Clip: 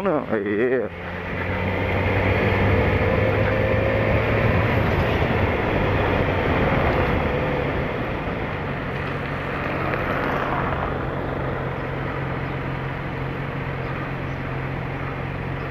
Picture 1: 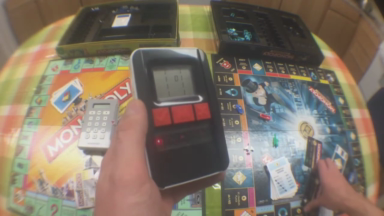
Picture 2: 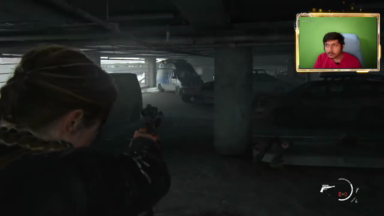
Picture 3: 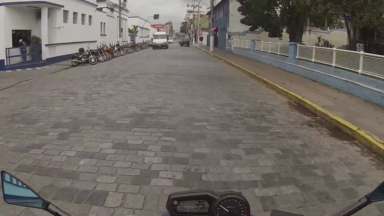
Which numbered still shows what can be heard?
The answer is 3